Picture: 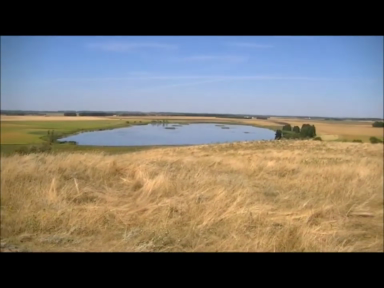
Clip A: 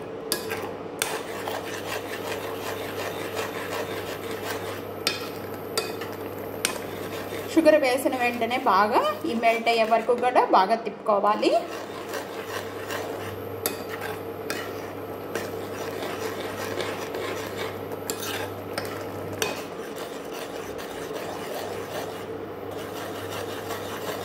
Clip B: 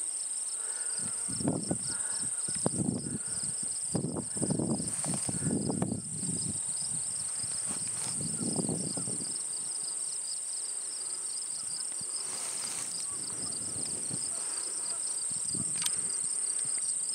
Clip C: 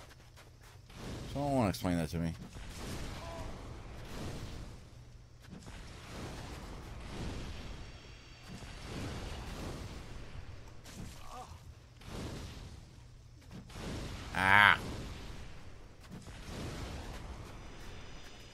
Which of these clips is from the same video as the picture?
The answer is B